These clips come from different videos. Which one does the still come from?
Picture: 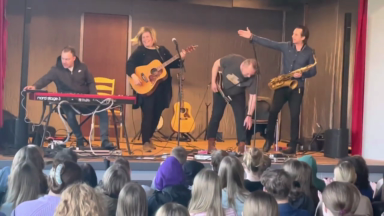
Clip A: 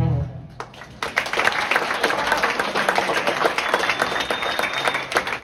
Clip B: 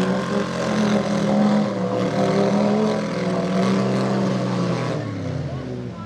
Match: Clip A